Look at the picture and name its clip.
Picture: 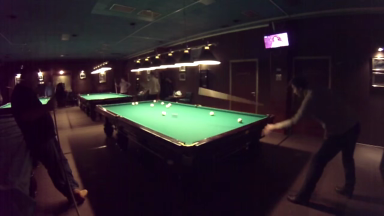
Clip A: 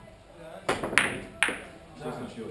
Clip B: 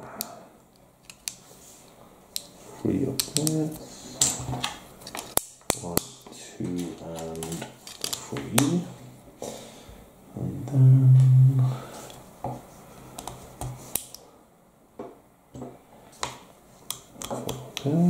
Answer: A